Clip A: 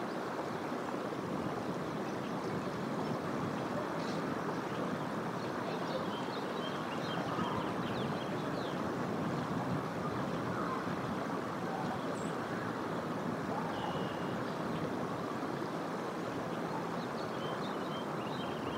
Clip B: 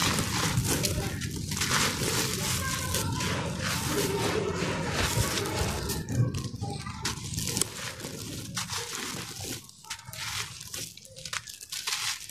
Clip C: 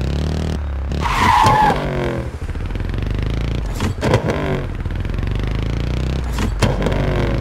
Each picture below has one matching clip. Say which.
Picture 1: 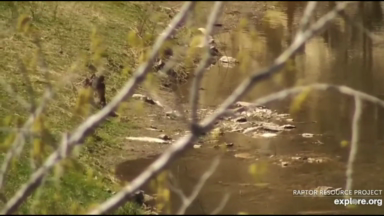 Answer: A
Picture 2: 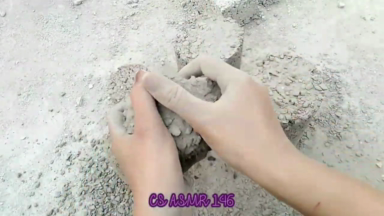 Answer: B